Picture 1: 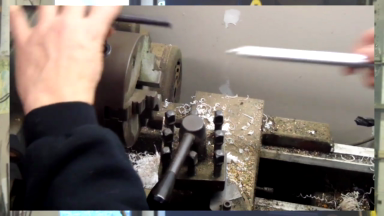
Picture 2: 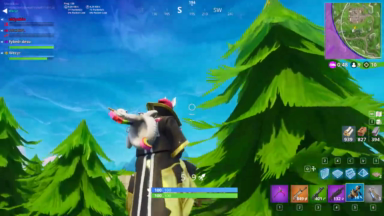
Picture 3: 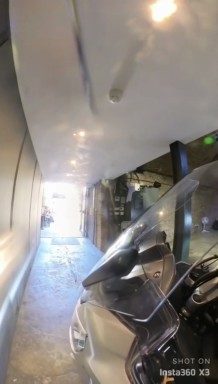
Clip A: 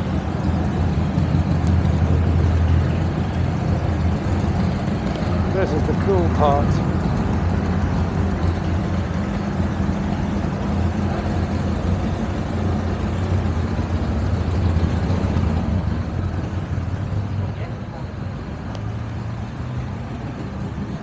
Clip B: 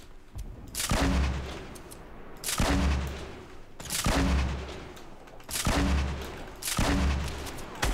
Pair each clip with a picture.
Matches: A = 3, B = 2